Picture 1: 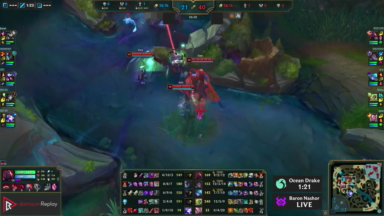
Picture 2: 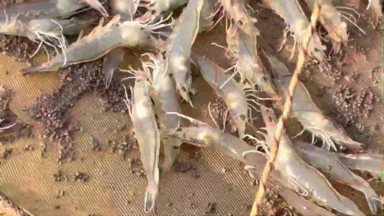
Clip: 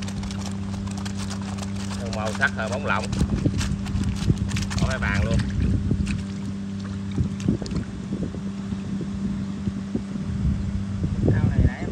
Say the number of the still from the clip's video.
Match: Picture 2